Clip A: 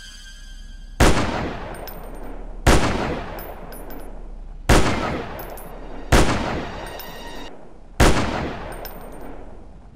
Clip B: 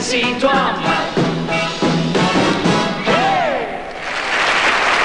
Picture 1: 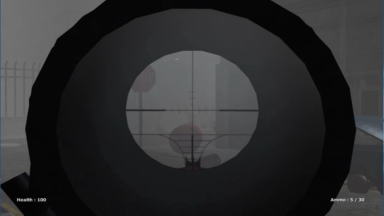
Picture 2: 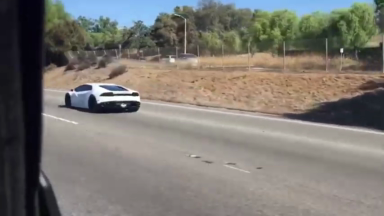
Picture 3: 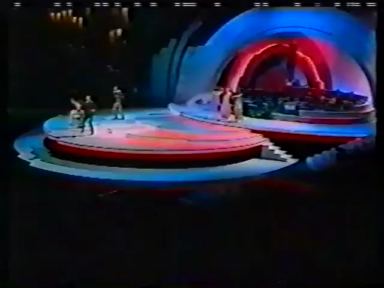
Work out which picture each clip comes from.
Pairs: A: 1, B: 3